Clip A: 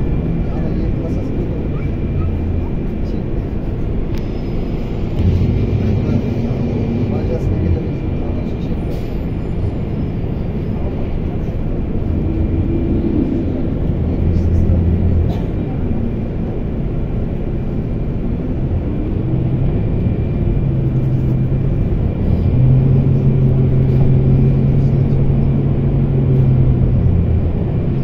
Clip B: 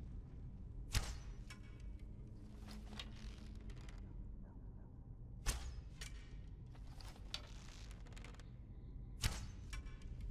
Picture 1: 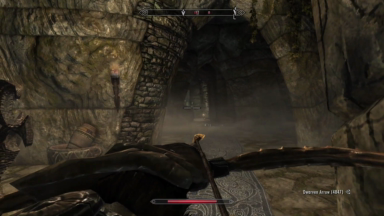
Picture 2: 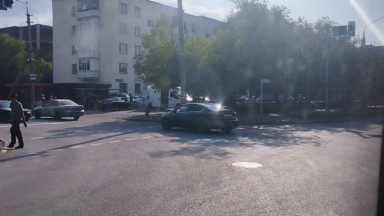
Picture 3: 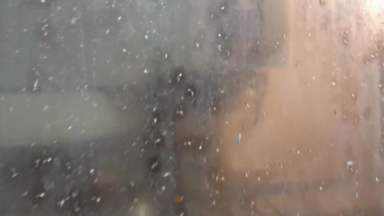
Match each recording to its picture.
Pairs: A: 2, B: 1